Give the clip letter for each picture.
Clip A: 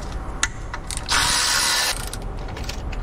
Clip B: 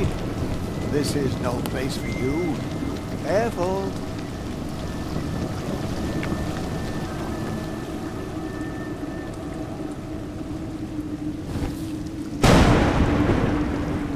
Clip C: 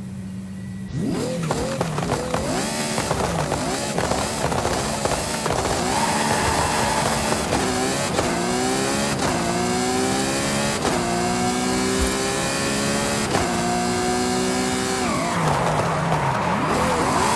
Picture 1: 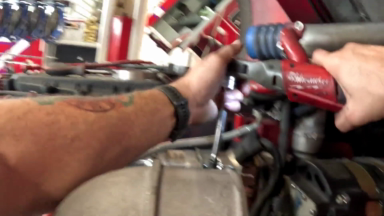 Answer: A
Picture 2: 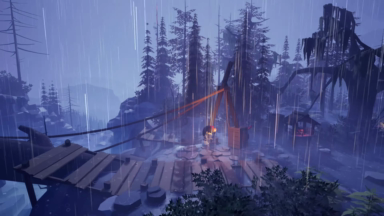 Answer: B